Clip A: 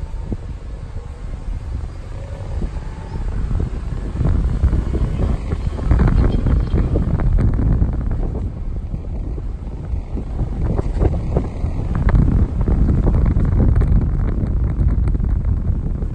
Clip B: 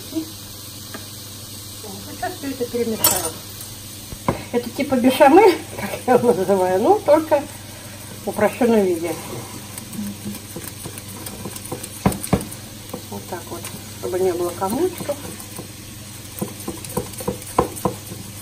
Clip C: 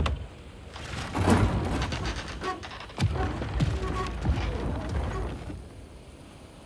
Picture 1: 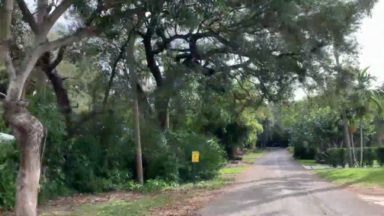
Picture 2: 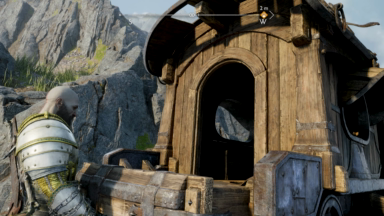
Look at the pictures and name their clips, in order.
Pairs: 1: A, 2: C